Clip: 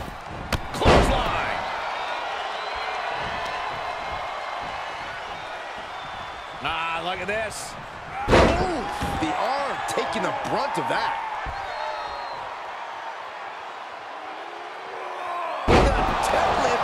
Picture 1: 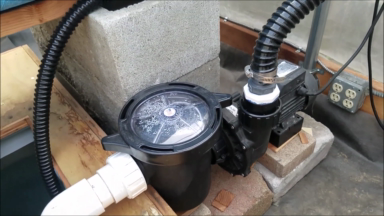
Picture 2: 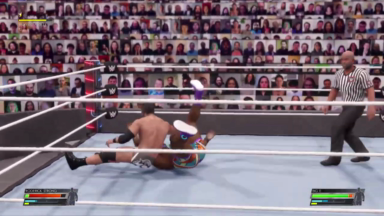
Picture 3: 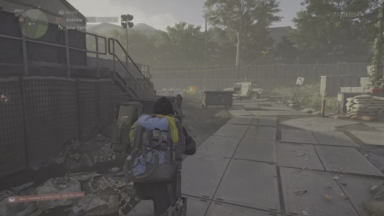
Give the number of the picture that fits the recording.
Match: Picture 2